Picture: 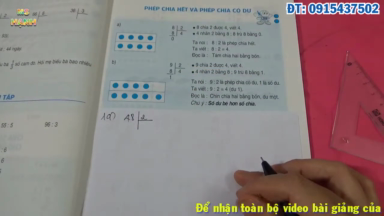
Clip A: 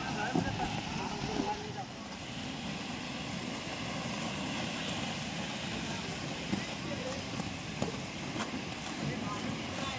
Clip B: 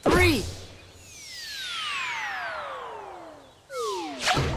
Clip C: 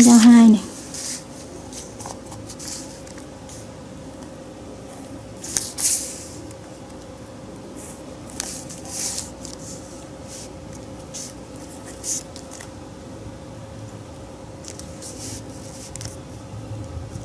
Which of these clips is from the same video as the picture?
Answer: C